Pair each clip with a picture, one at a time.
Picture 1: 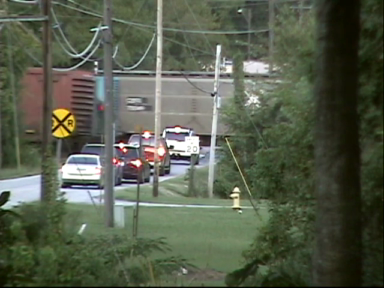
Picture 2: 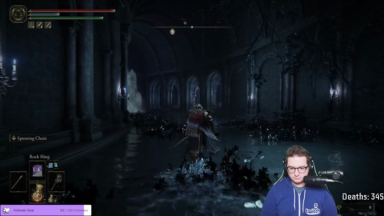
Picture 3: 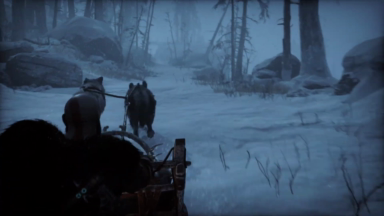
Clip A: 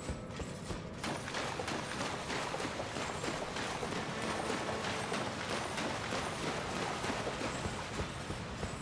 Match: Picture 2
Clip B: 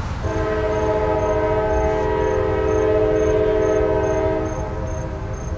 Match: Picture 1